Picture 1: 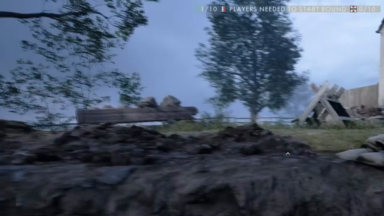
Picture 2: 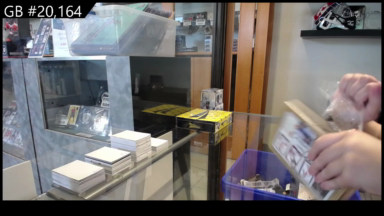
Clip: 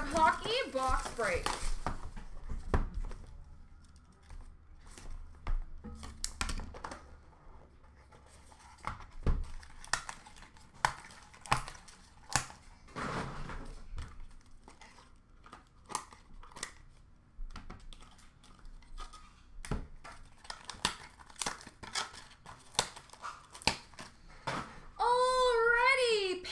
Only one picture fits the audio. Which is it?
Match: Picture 2